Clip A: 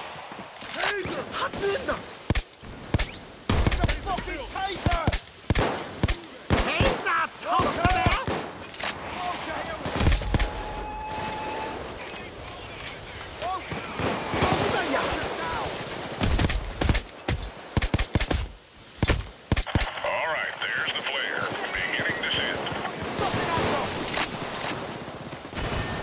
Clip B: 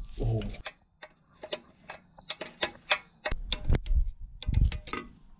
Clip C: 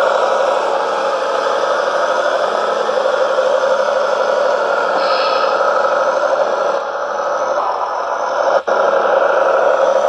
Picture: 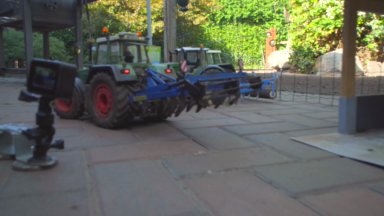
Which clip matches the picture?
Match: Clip C